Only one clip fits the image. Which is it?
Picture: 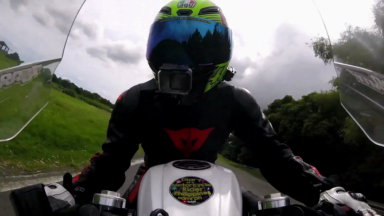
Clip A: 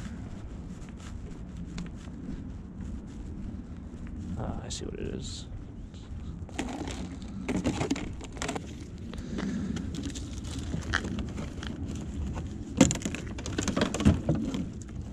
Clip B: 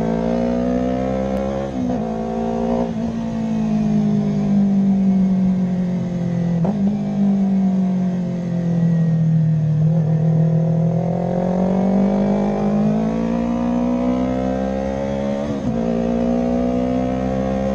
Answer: B